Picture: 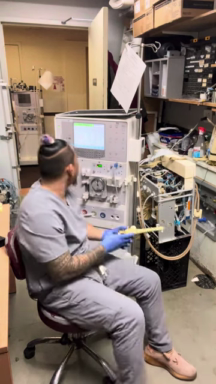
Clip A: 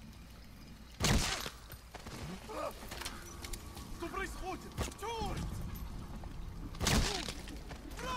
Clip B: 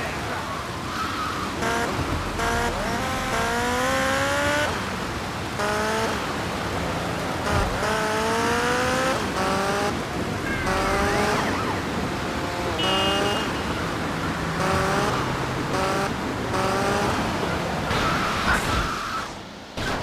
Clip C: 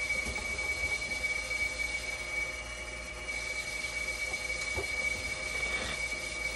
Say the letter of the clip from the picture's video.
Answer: C